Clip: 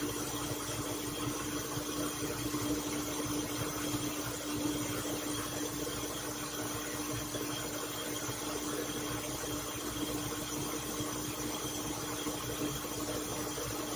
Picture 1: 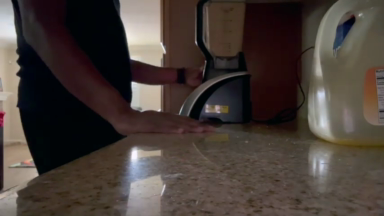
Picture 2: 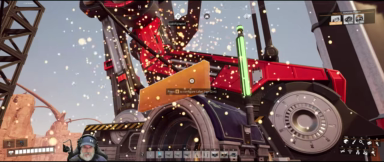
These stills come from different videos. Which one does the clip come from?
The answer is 1